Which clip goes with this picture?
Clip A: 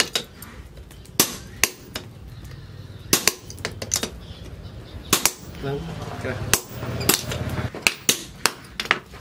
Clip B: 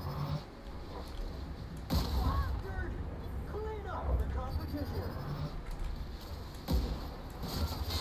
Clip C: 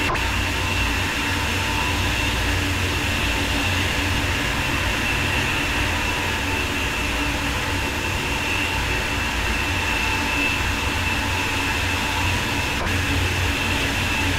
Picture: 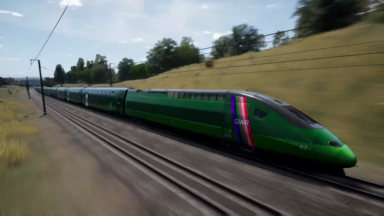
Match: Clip C